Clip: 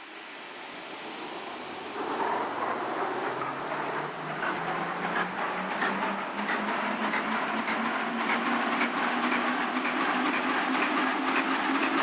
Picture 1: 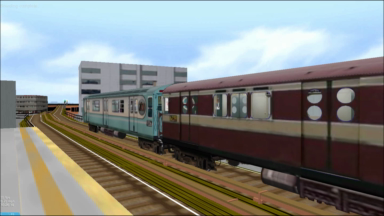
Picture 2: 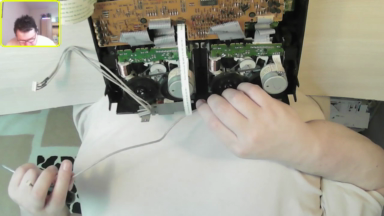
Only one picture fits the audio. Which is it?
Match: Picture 1